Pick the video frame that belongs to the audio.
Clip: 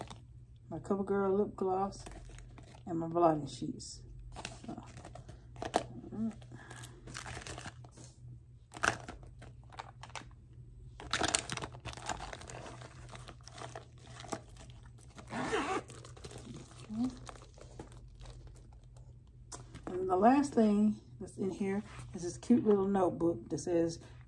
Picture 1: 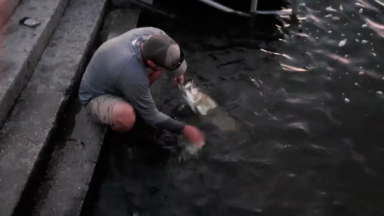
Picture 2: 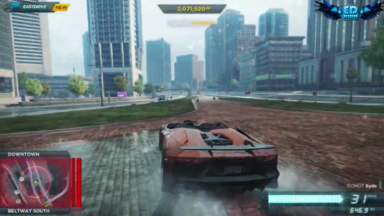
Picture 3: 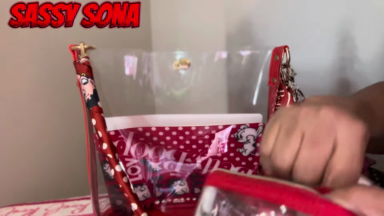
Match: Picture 3